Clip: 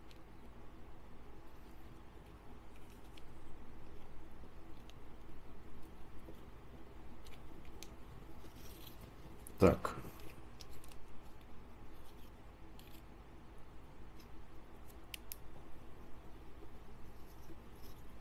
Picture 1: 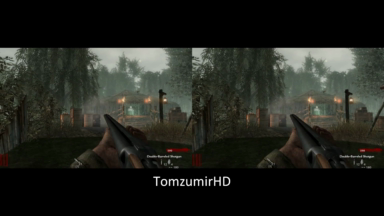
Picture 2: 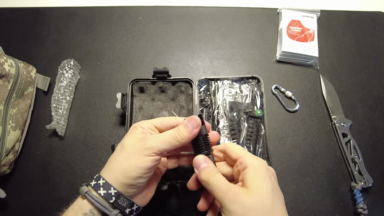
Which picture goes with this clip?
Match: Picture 2